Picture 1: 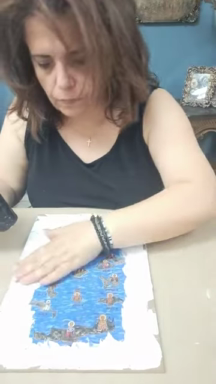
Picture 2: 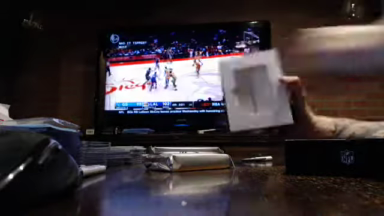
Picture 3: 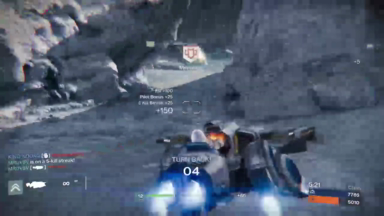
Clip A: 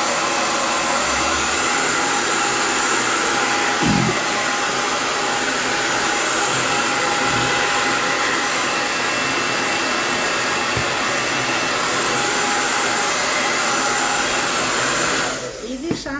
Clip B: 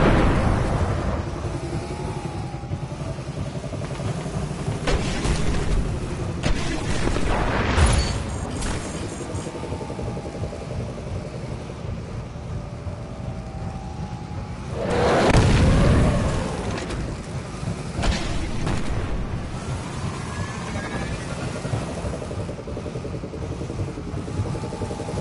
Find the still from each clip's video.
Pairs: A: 1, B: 3